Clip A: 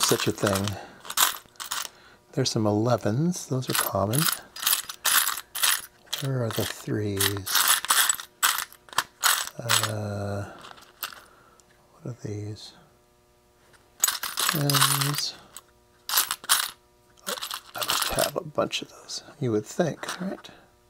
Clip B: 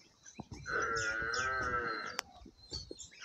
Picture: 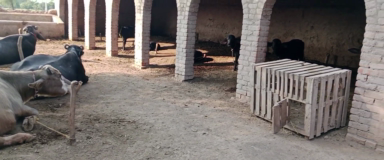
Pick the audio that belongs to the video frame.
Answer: B